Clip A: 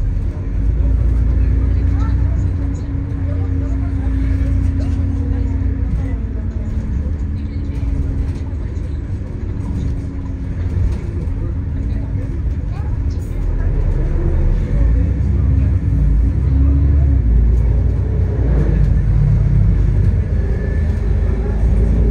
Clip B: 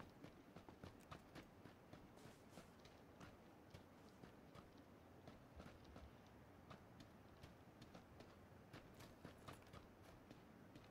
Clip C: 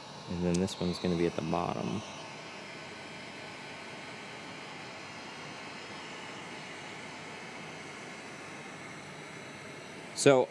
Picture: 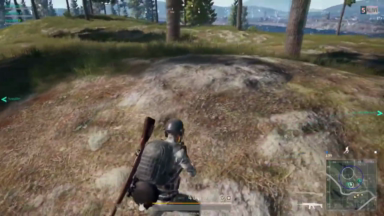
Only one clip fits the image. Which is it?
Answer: B